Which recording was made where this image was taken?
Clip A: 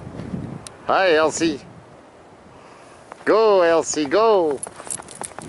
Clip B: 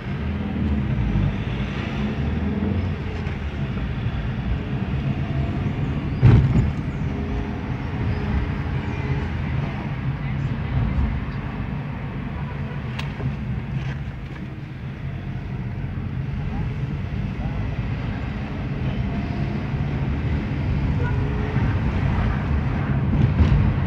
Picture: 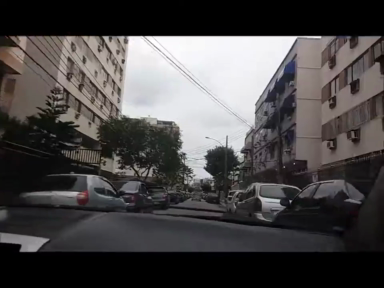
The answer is B